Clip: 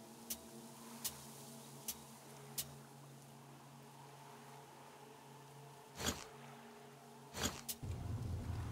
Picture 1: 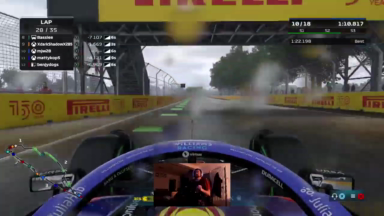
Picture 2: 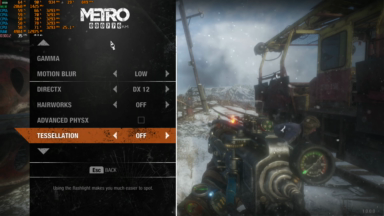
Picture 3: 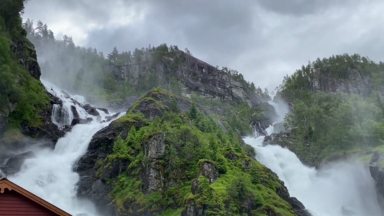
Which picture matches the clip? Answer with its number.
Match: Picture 2